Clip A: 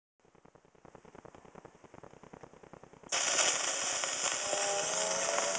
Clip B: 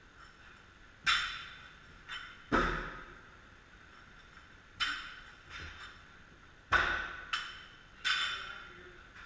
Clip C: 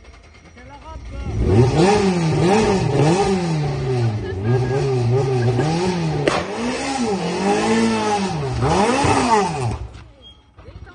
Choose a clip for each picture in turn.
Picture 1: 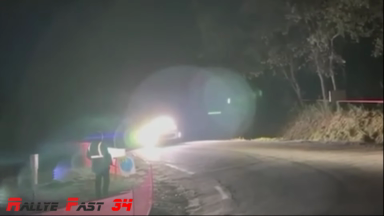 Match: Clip C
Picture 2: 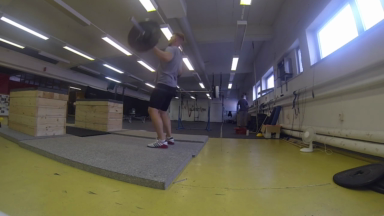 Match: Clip B